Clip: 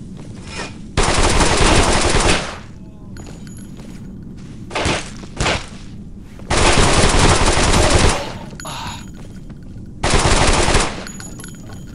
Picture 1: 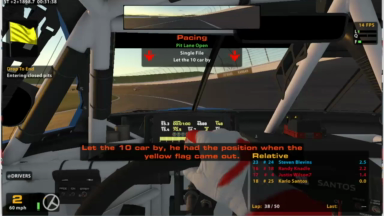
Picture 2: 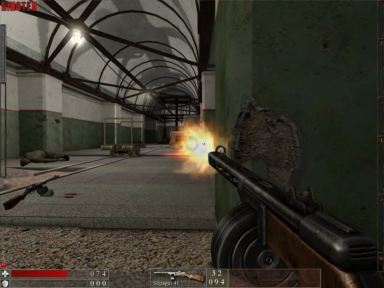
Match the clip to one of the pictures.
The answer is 2